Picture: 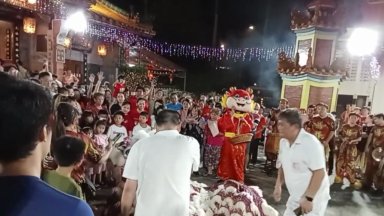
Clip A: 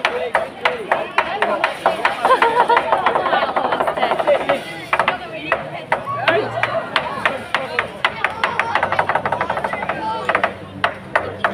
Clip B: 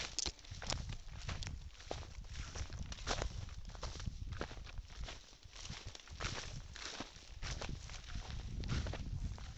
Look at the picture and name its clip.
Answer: A